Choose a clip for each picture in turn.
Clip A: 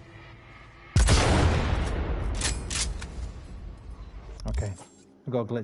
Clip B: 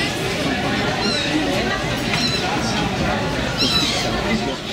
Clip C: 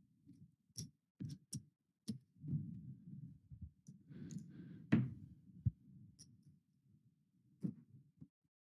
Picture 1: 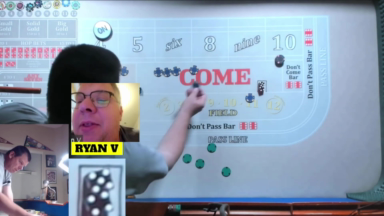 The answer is C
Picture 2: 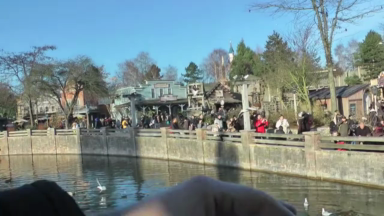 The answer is B